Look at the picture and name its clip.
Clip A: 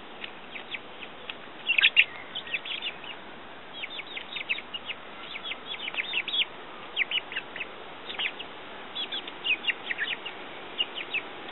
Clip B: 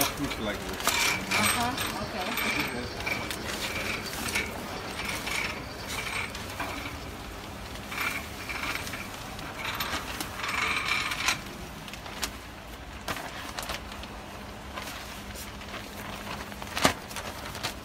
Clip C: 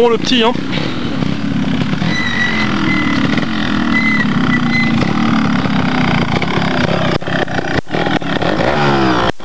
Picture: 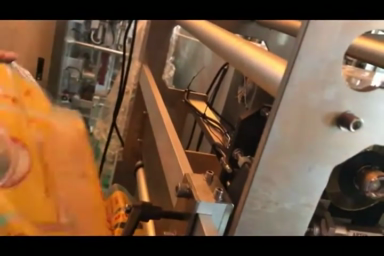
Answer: B